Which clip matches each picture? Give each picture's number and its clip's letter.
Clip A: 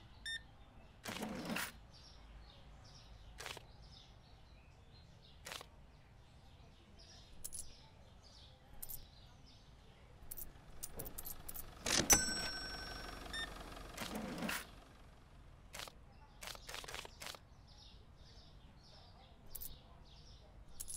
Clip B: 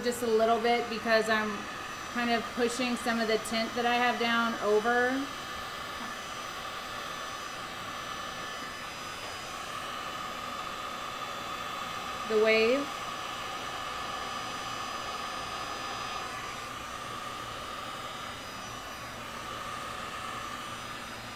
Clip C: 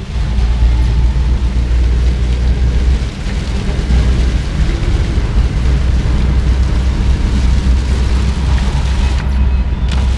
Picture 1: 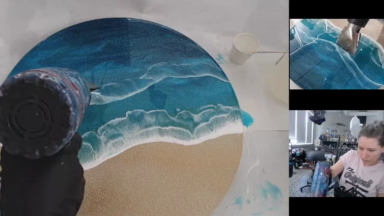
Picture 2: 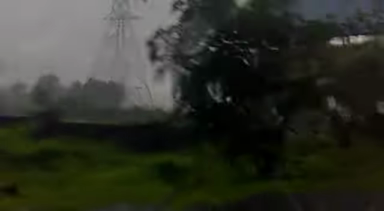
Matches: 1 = B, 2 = C